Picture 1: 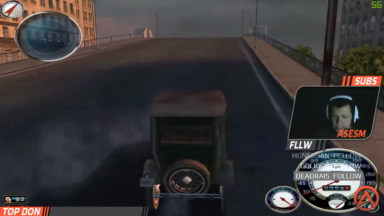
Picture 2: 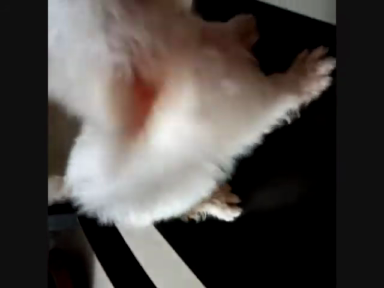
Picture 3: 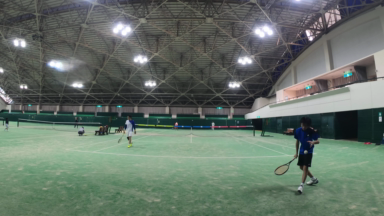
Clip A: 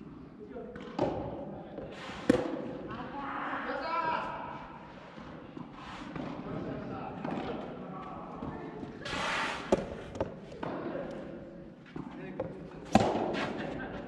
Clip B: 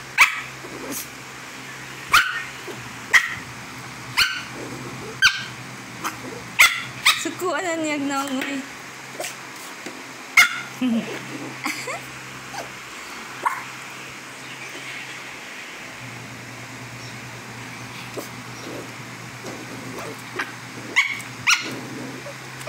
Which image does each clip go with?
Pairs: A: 3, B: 2